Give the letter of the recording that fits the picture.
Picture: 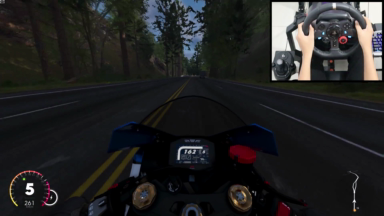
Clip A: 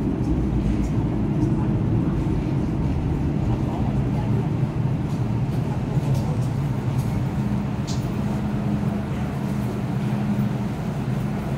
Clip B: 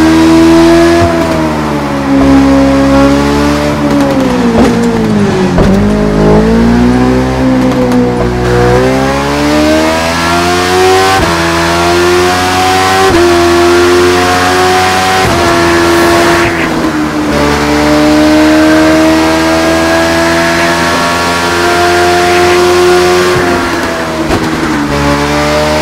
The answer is B